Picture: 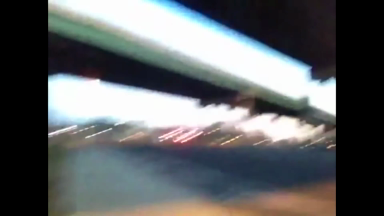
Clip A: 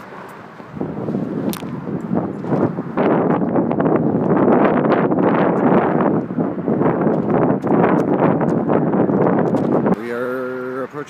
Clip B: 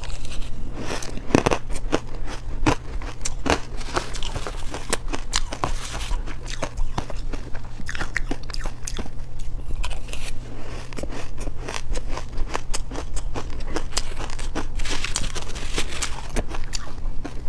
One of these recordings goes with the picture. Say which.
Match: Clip A